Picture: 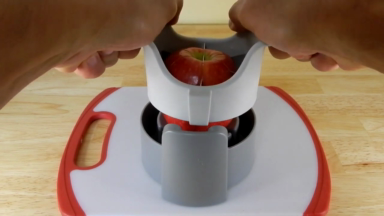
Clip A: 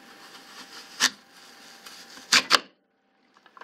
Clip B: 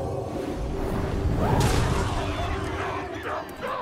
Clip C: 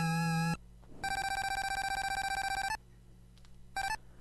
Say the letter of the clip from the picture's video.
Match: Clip A